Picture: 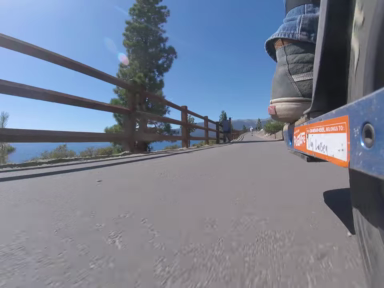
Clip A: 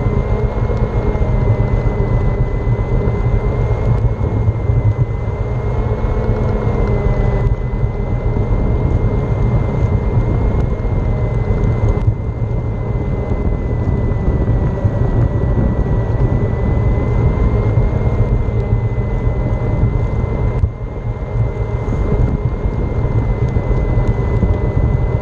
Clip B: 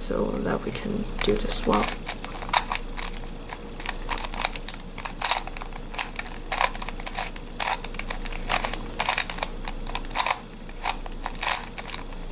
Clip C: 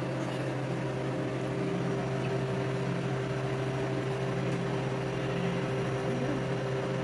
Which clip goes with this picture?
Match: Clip A